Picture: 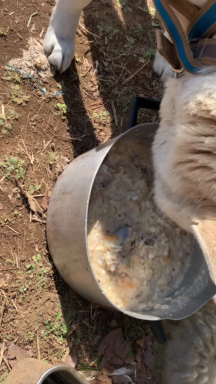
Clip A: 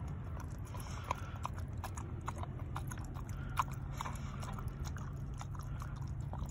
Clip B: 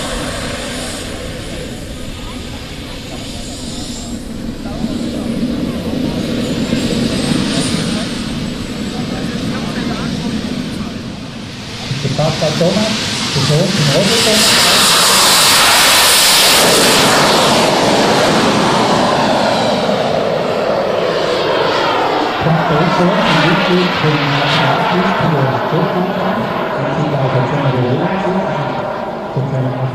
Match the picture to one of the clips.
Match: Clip A